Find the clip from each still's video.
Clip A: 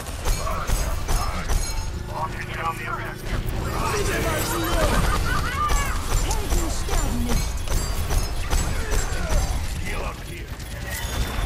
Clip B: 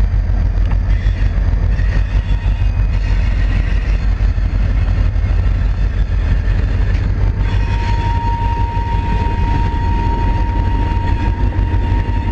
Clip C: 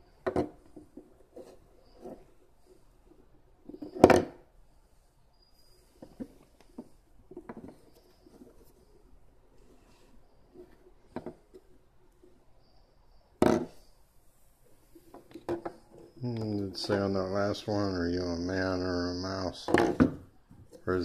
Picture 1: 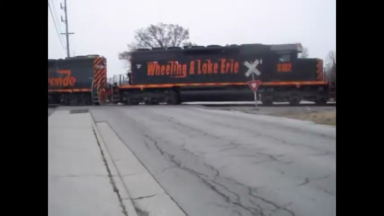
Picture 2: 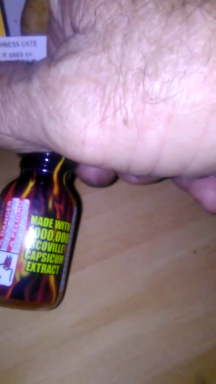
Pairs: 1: B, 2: C